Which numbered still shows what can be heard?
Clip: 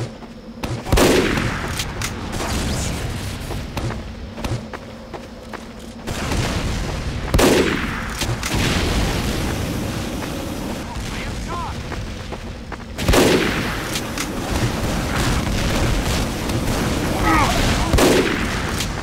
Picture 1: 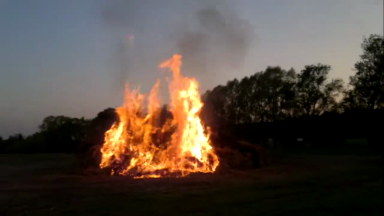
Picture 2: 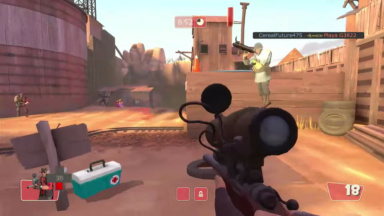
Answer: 2